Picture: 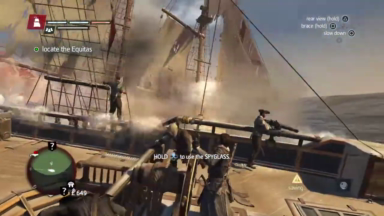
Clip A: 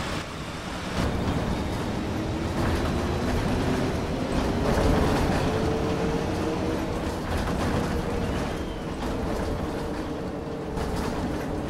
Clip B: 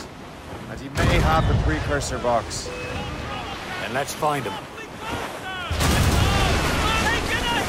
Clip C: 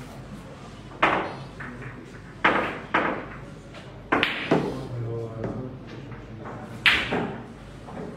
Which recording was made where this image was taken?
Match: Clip B